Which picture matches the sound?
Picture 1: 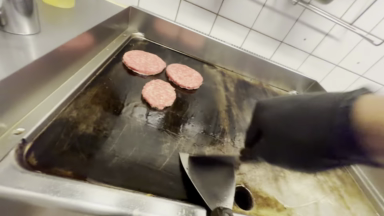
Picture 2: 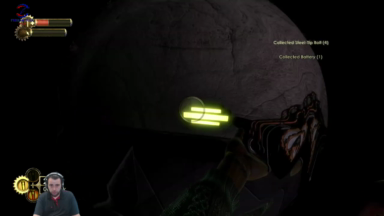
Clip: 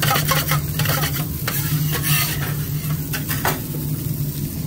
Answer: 1